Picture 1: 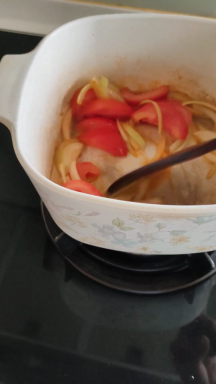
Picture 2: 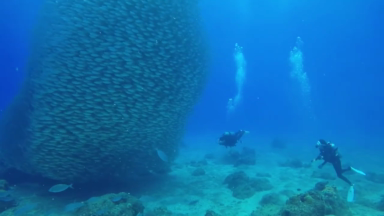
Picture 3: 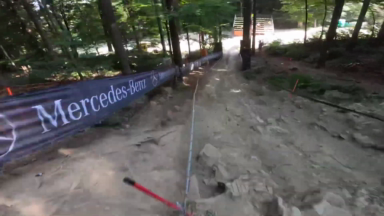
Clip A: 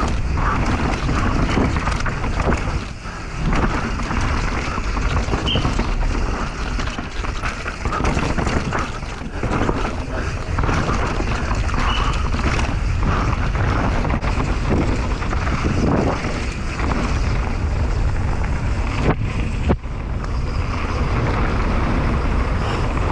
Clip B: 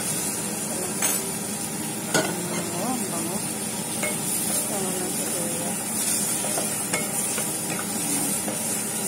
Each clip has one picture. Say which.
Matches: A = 3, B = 1